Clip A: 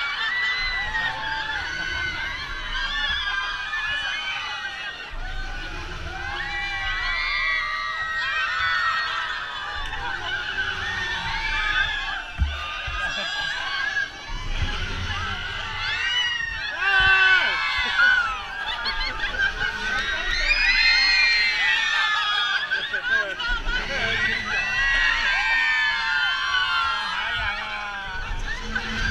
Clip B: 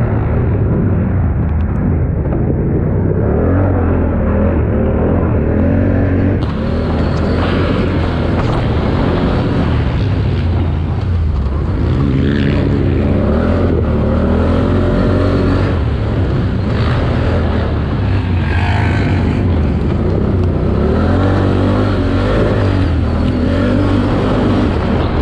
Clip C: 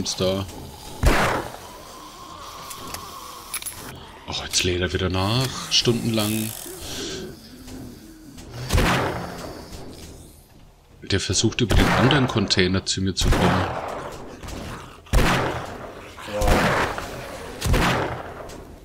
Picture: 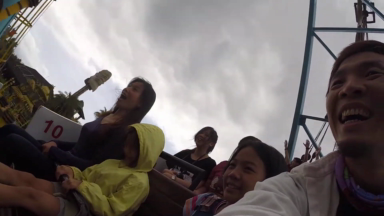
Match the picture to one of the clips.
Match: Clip A